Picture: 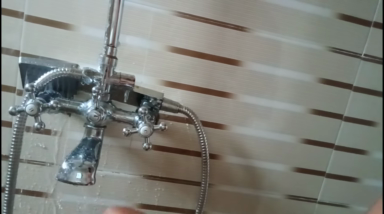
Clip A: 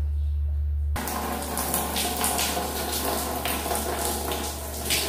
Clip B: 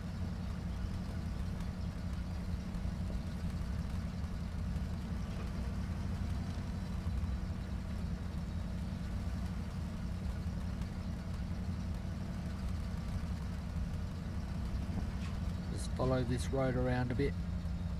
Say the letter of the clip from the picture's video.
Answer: A